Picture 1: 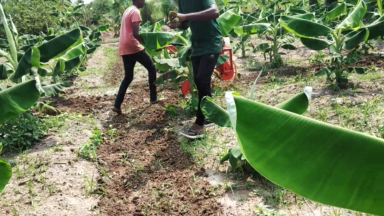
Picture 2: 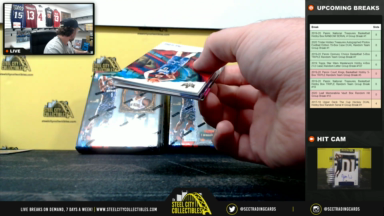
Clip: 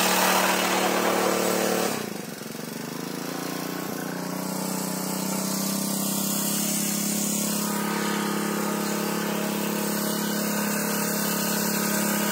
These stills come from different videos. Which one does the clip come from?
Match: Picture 1